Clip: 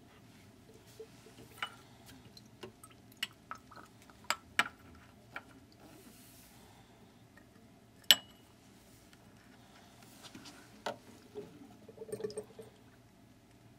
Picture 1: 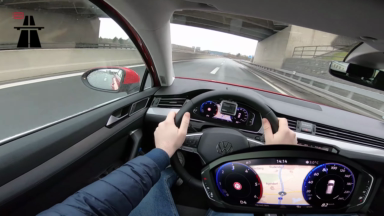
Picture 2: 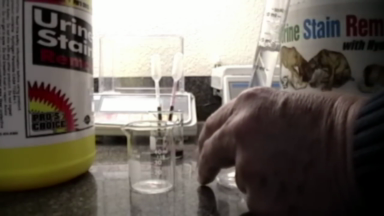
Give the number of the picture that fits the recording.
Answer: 2